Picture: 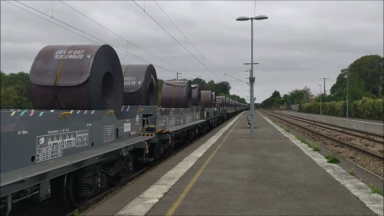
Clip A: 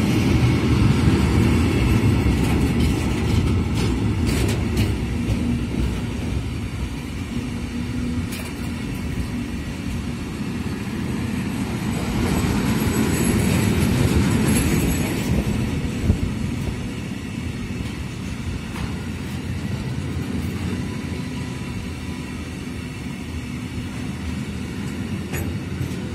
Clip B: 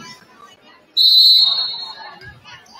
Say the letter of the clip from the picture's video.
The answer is A